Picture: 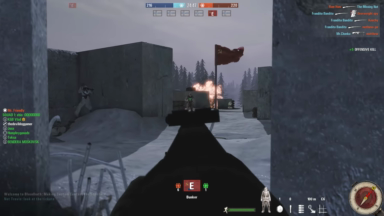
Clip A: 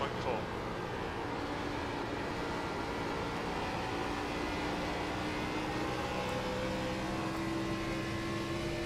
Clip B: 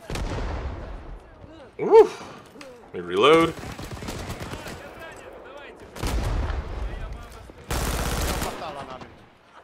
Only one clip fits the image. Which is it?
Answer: B